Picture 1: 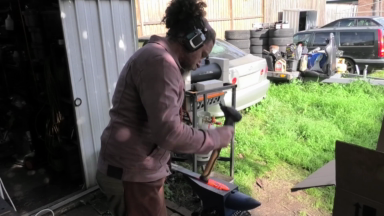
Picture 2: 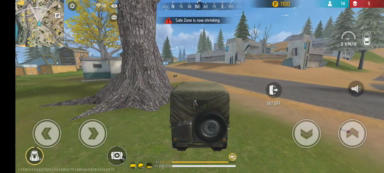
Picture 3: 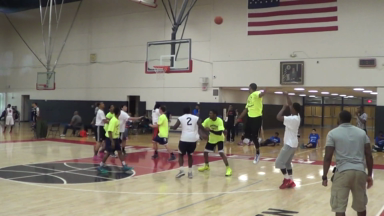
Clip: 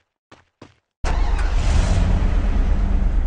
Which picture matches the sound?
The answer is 2